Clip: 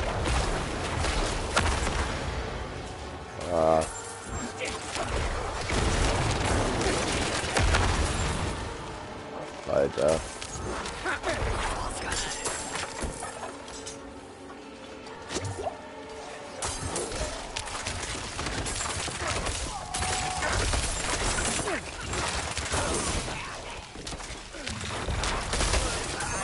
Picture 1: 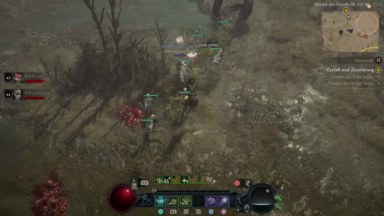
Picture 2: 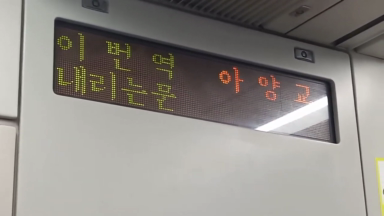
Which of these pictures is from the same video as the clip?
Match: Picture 1